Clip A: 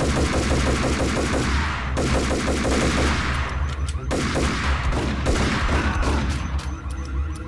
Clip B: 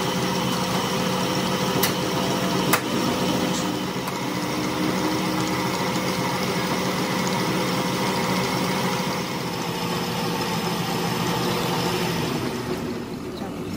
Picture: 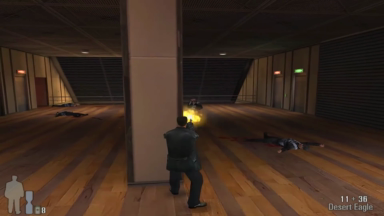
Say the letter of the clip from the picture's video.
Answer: A